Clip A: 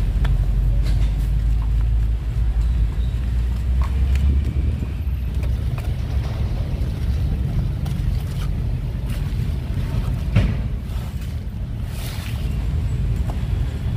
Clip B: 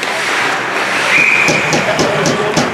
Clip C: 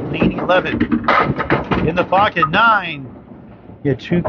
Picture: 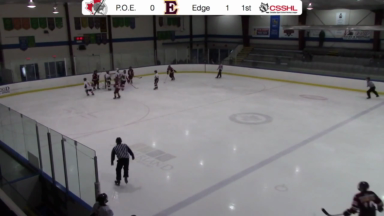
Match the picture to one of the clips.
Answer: B